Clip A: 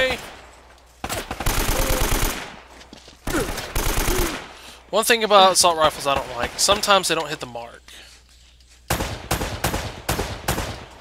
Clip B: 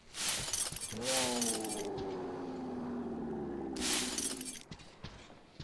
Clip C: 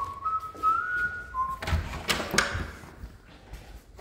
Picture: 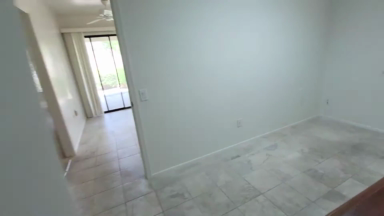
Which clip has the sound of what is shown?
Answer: C